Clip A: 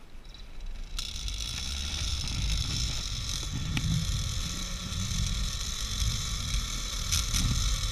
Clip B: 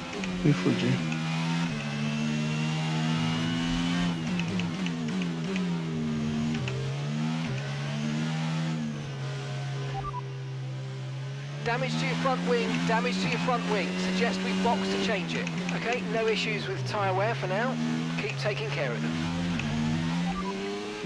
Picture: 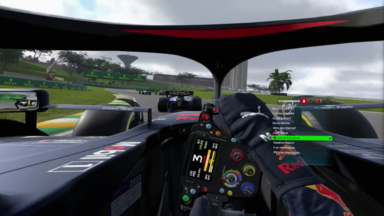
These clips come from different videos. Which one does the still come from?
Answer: B